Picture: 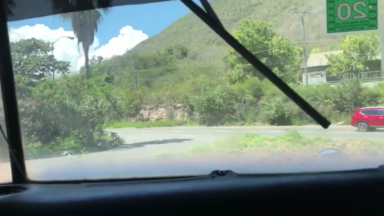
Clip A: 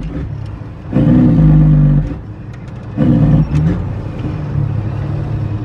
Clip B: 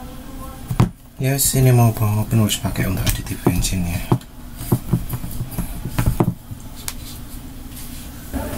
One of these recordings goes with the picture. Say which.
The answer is A